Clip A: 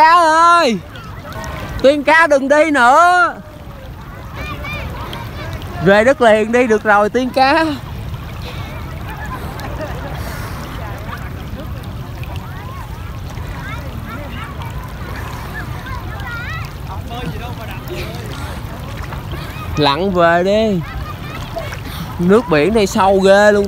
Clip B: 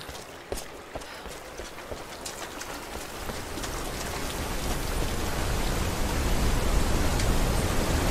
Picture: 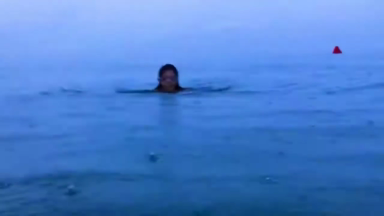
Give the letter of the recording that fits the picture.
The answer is A